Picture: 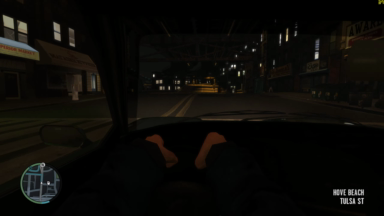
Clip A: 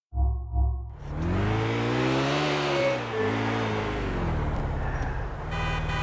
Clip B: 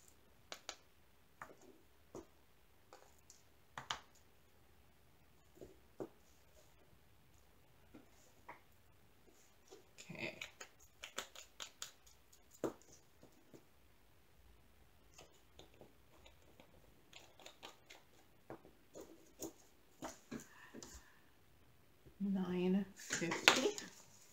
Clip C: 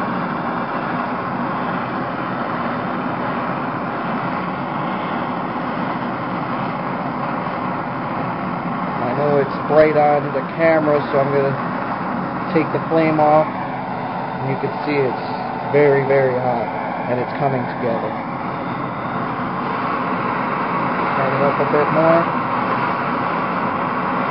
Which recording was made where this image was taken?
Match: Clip A